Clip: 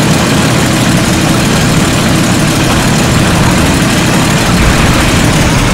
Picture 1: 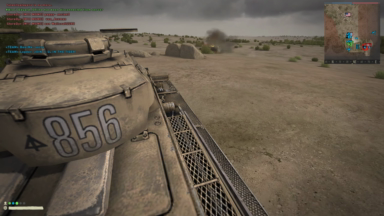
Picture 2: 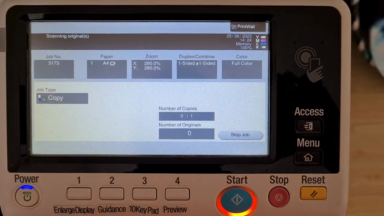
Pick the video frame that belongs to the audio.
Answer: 1